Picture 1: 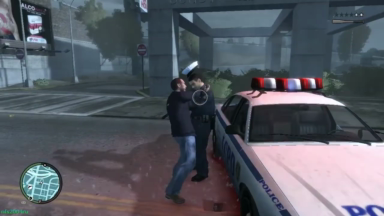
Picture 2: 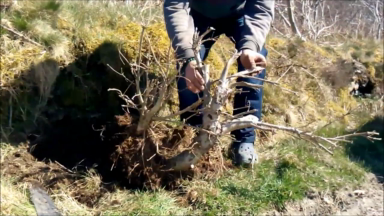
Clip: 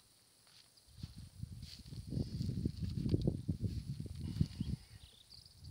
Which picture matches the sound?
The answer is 2